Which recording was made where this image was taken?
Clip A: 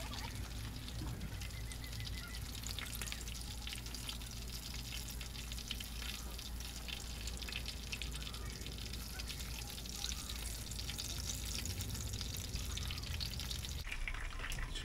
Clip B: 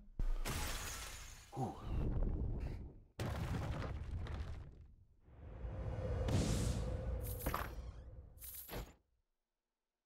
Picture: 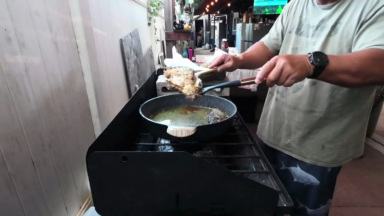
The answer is A